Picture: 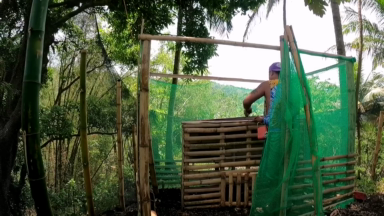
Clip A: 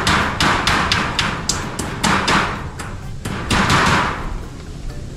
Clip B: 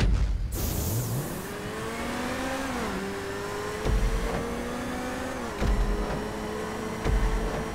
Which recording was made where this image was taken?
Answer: A